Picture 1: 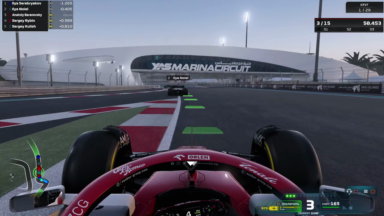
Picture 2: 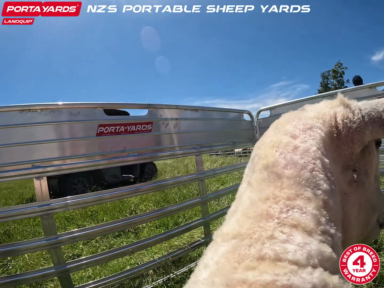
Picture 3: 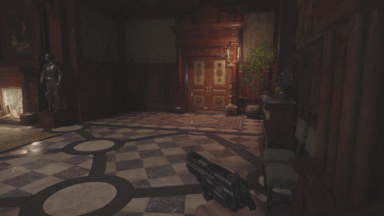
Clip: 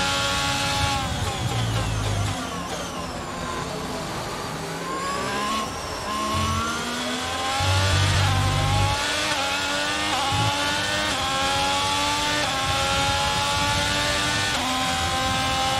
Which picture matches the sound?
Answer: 1